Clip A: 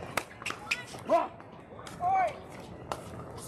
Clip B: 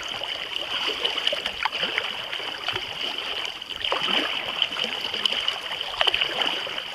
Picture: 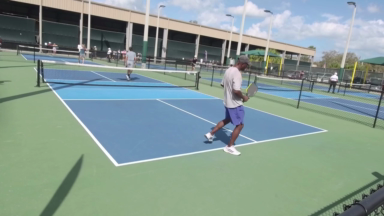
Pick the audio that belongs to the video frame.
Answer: A